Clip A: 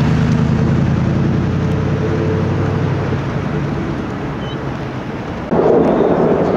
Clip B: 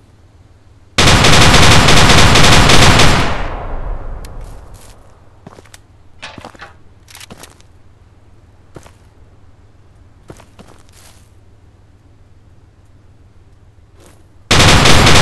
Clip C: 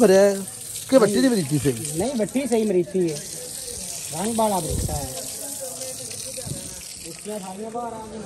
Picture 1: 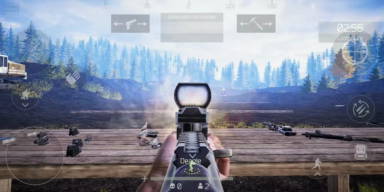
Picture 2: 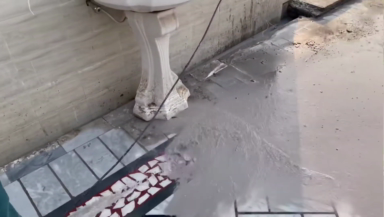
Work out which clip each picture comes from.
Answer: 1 B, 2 C